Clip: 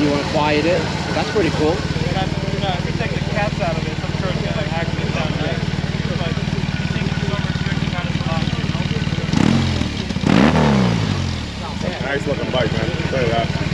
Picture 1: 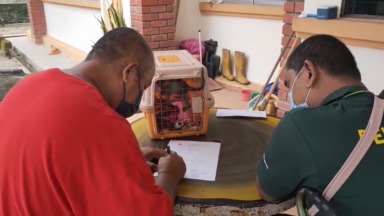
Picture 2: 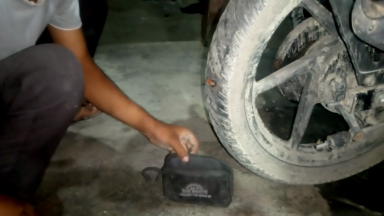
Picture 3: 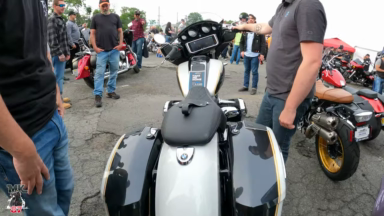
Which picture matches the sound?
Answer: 3